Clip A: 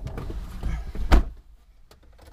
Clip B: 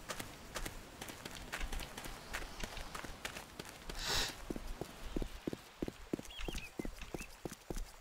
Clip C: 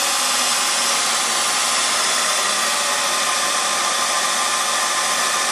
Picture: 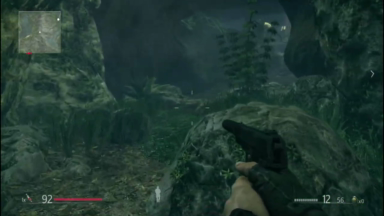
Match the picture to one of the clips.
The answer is B